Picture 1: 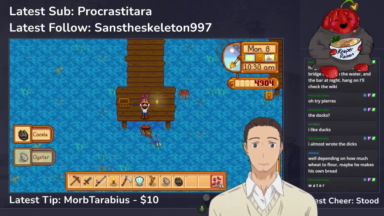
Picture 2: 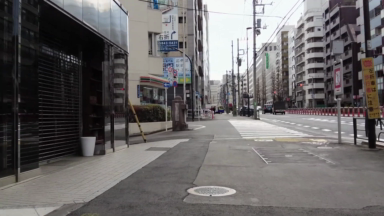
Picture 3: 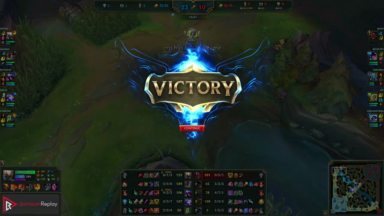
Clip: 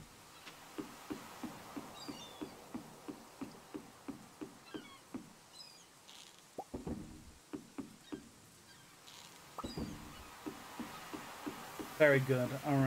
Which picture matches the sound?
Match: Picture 1